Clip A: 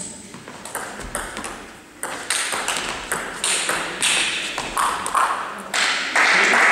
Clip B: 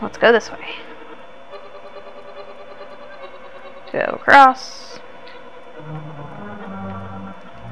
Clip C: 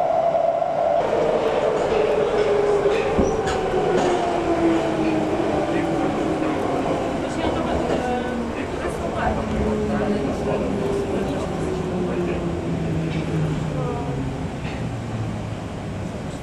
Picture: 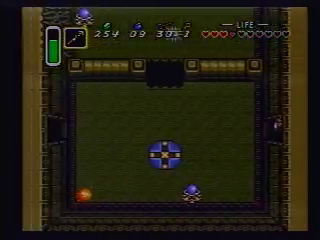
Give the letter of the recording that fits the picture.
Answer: B